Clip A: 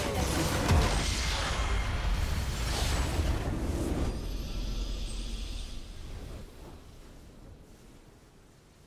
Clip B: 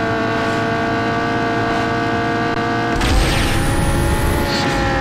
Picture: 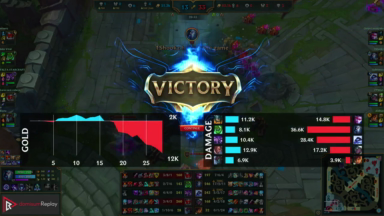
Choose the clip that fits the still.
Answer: A